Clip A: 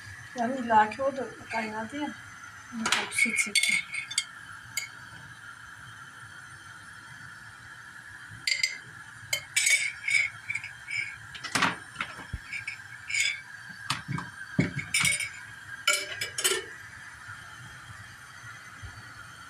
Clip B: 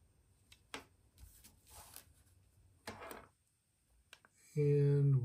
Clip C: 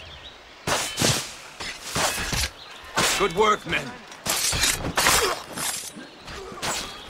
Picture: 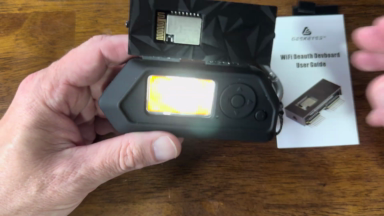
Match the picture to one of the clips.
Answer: B